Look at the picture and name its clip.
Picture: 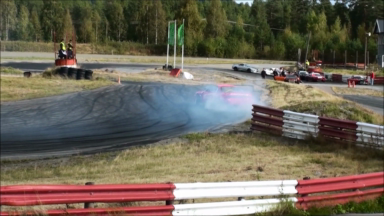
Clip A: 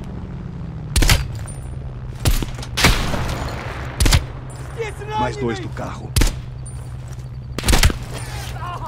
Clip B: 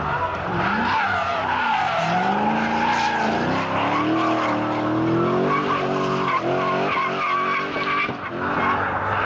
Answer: B